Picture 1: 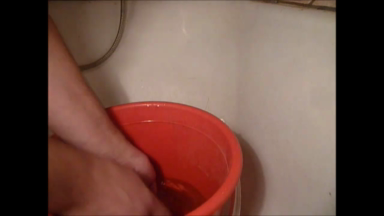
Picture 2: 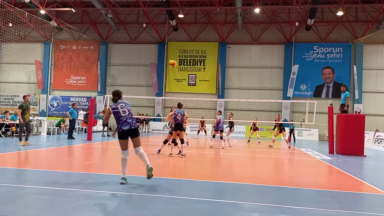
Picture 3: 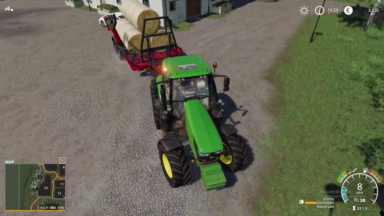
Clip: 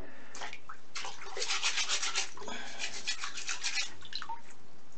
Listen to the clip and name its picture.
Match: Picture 1